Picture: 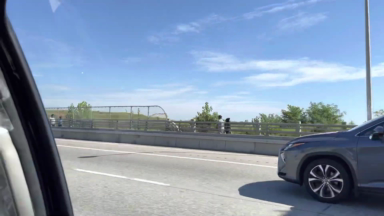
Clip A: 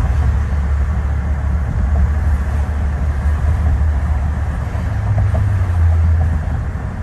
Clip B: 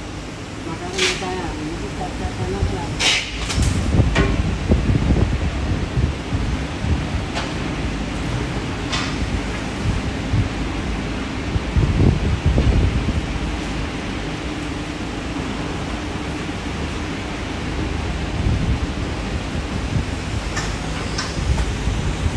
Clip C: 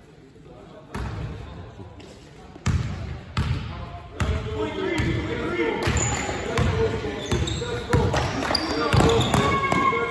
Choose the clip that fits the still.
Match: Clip A